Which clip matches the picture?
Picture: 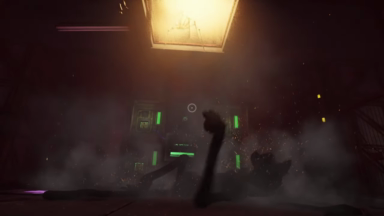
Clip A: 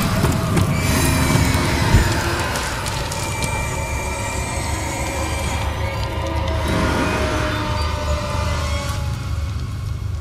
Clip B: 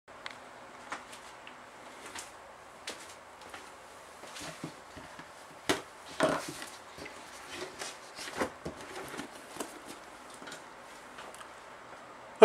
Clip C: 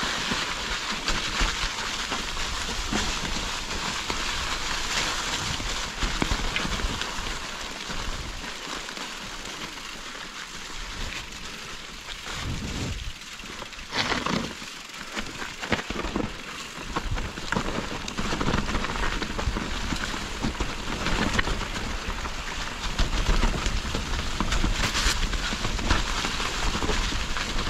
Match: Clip A